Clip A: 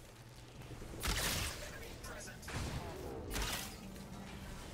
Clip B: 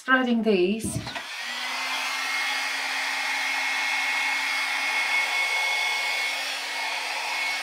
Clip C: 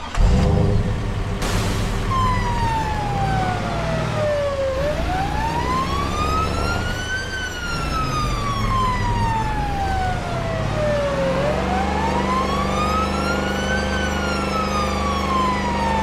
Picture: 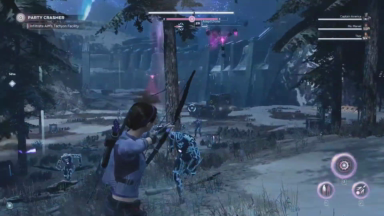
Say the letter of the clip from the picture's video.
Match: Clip A